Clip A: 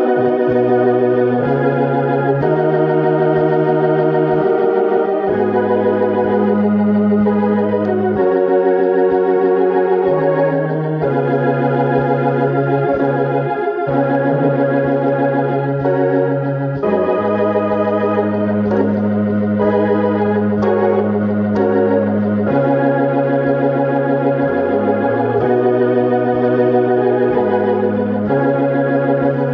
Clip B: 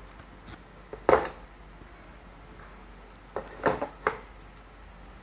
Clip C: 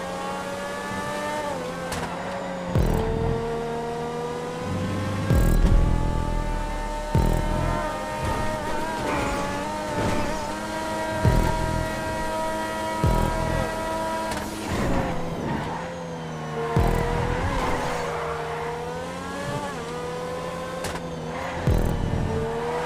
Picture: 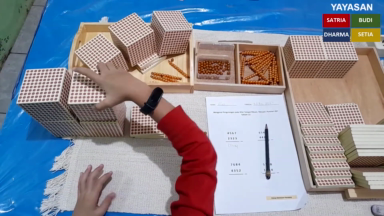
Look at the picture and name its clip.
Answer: B